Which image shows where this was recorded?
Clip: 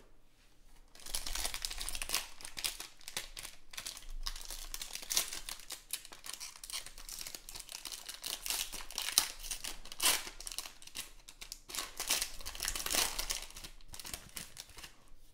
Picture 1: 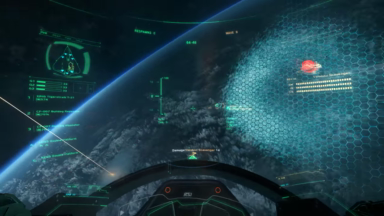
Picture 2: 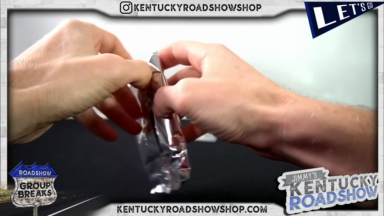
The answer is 2